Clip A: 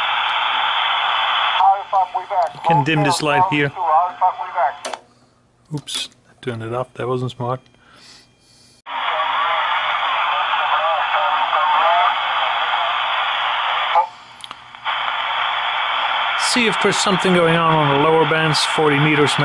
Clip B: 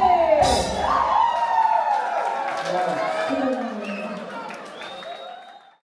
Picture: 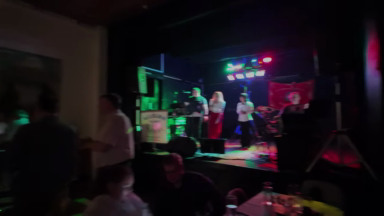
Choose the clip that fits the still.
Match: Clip B